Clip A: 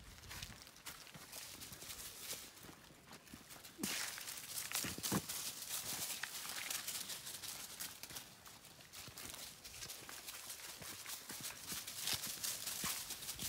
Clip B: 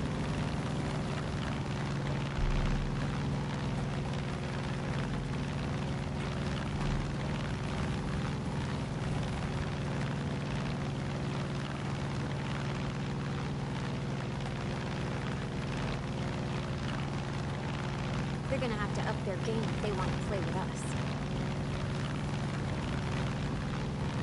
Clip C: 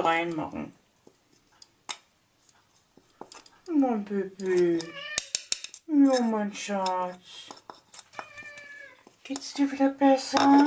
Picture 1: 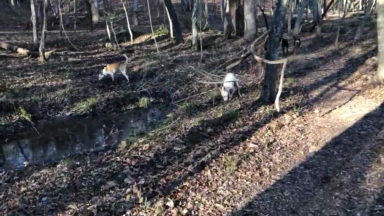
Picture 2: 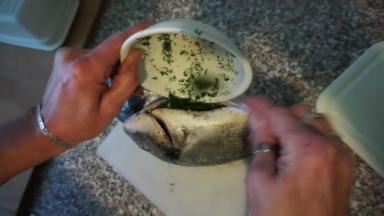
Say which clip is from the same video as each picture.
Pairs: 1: A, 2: C